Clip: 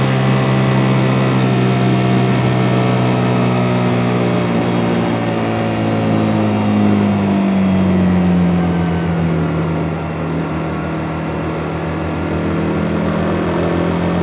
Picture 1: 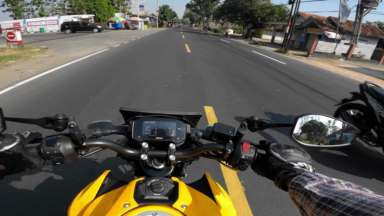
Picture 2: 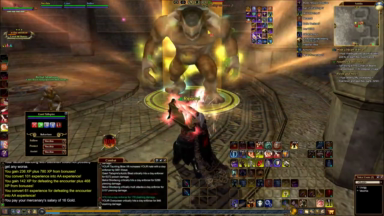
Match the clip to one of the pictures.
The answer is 1